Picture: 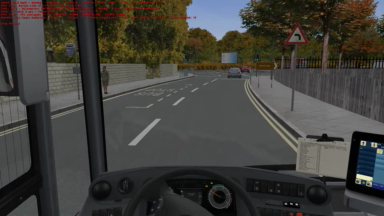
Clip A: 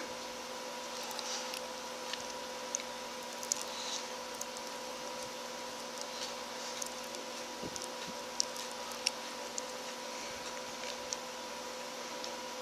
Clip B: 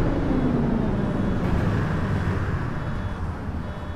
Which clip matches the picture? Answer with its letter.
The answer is B